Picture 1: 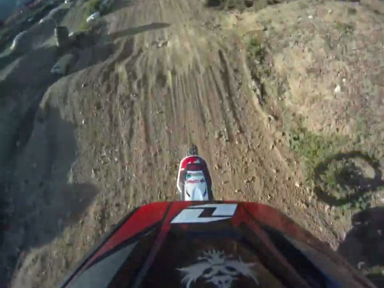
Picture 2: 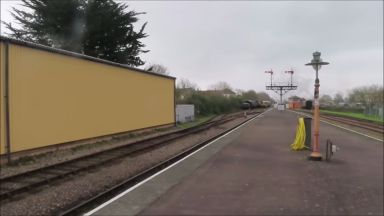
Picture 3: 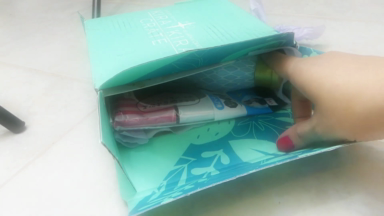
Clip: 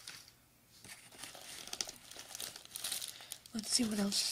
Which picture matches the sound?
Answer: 3